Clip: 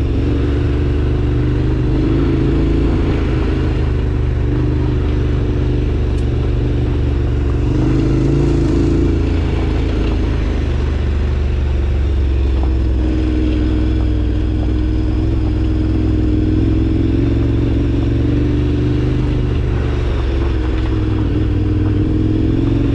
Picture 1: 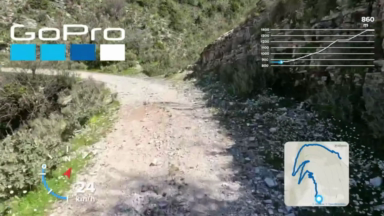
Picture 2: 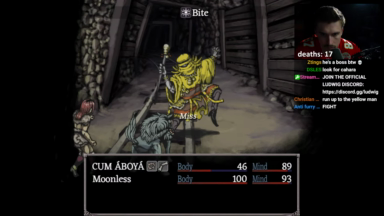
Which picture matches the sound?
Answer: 1